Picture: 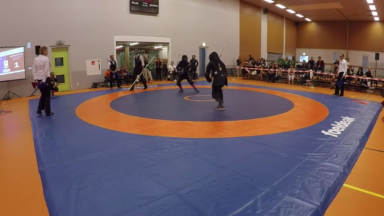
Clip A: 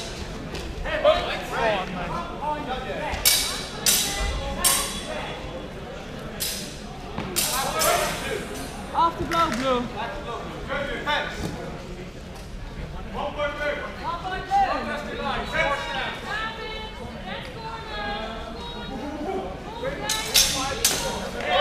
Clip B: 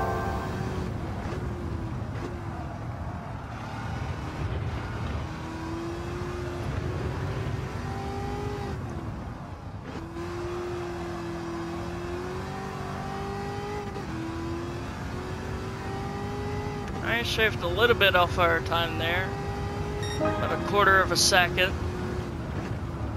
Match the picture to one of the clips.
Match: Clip A